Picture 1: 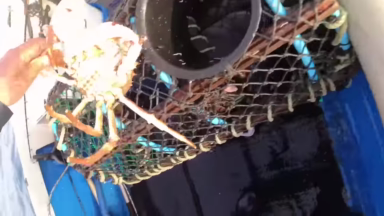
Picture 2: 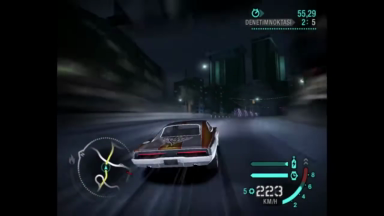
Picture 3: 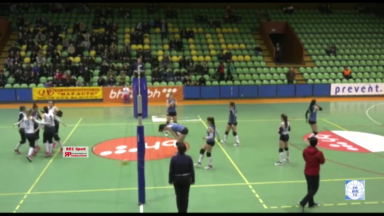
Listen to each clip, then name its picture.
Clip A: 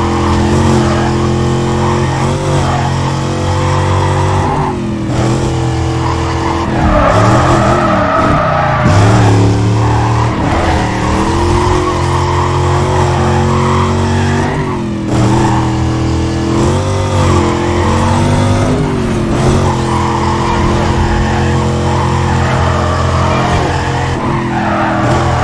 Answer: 2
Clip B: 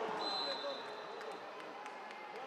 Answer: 3